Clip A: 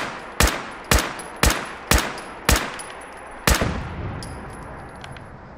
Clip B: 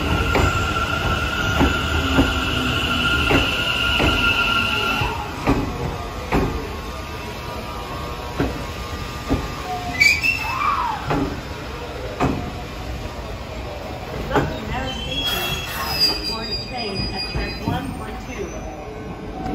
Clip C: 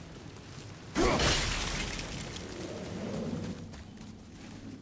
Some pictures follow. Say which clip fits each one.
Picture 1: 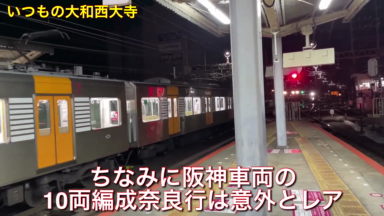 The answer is B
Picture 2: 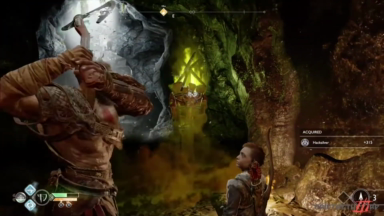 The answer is C